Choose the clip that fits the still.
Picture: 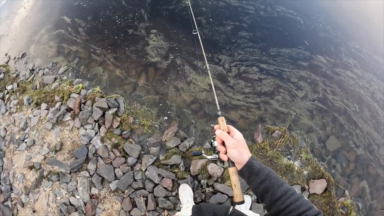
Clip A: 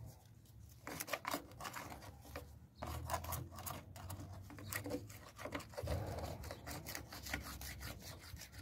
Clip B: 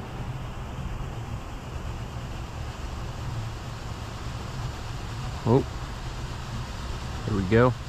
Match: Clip B